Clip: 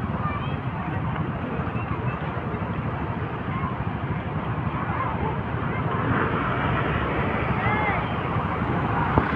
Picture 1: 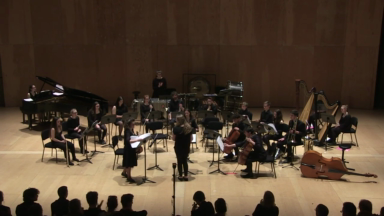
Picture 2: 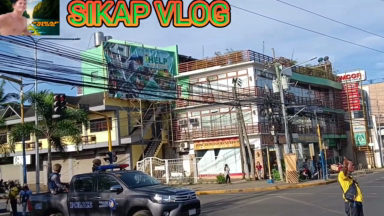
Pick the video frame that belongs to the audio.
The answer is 2